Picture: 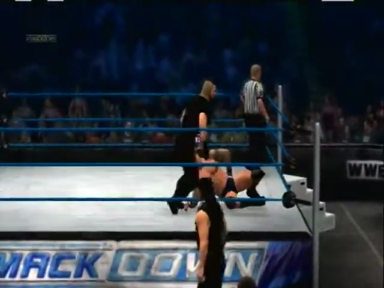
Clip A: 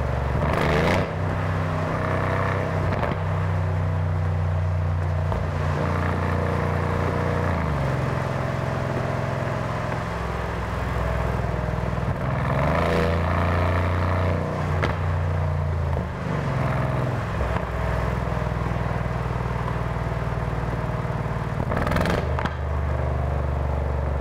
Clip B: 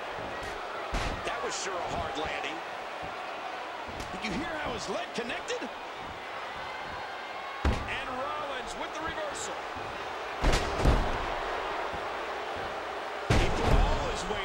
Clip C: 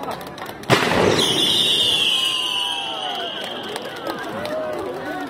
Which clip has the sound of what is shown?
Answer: B